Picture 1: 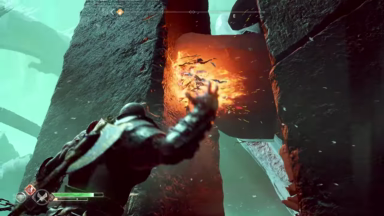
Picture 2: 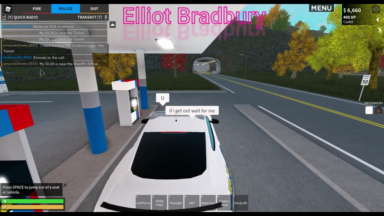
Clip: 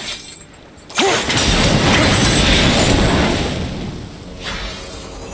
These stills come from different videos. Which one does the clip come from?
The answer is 1